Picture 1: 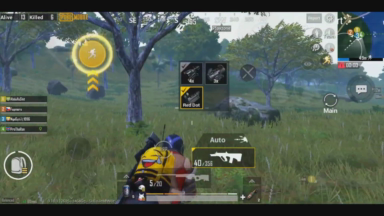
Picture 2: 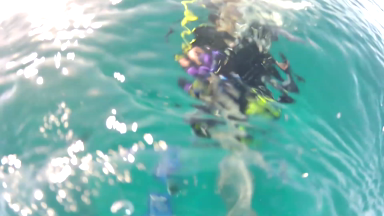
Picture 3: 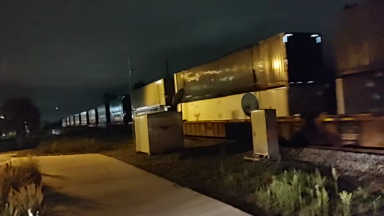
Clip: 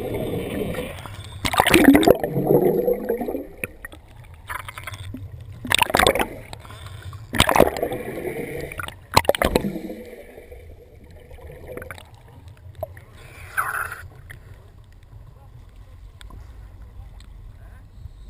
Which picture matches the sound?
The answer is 2